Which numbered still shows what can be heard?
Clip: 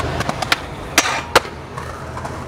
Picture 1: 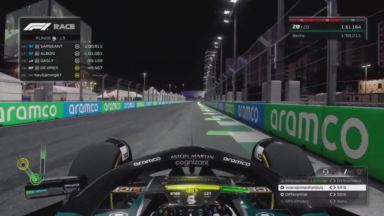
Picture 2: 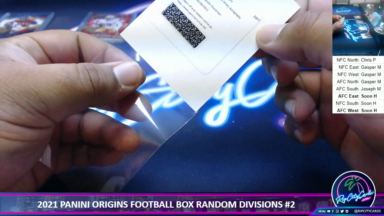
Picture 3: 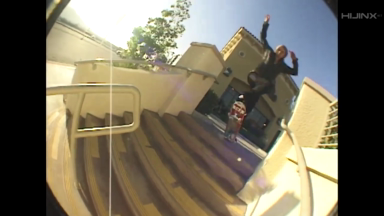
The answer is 3